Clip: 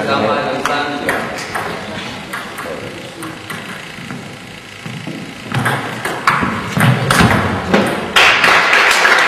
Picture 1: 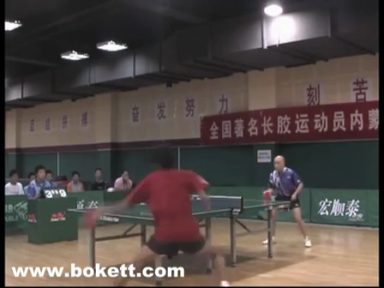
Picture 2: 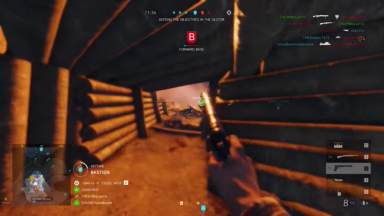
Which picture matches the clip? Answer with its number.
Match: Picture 1